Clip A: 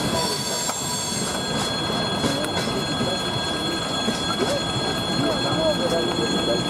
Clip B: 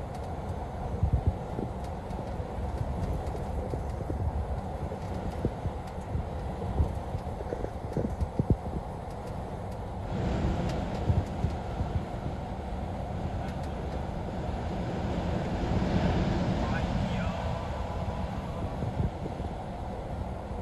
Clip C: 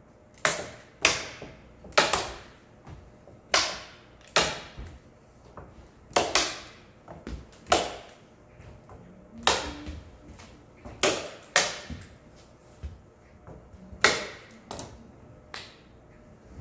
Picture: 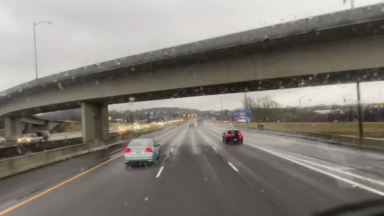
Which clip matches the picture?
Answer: B